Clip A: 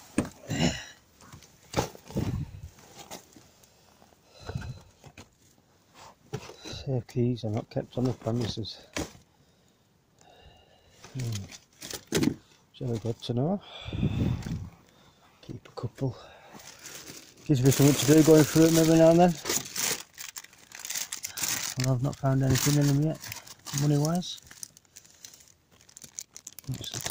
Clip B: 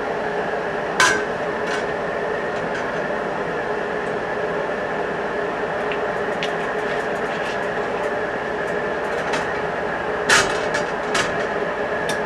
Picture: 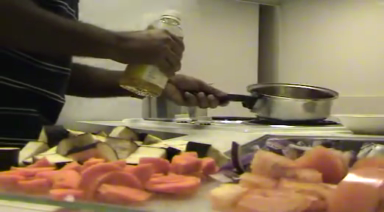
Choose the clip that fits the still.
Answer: B